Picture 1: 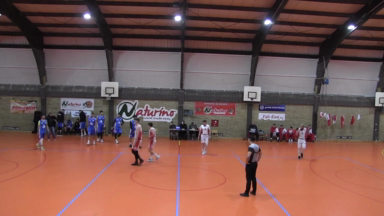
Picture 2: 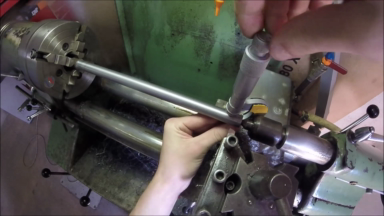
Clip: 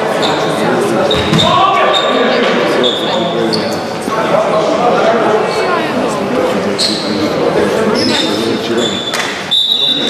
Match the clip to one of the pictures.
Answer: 1